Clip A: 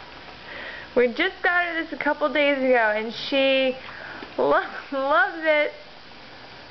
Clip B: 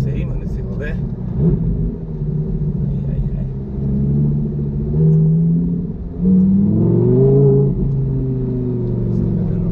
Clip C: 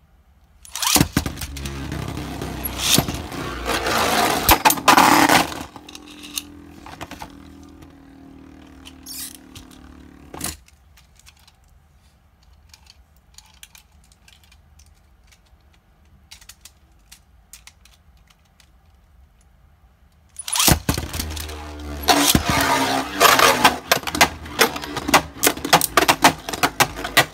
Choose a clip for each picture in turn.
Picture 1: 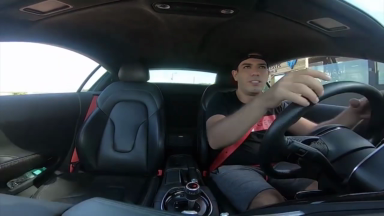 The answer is B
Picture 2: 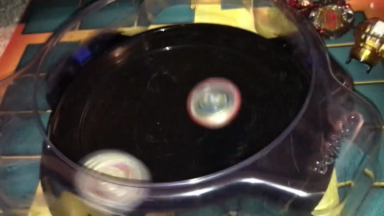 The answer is C